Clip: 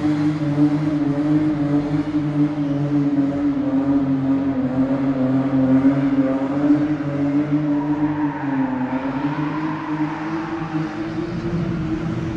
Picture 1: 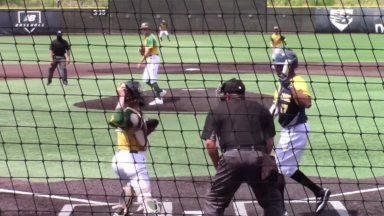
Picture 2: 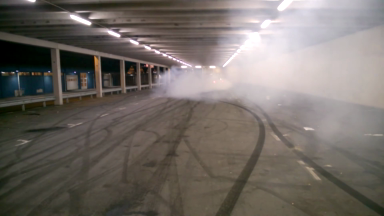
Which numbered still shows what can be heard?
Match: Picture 2